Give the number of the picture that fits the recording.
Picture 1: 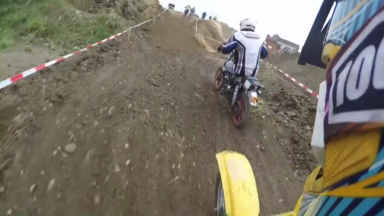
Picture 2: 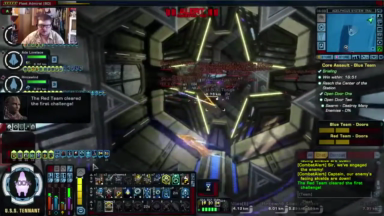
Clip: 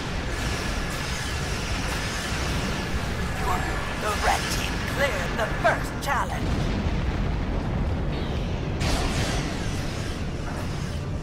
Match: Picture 2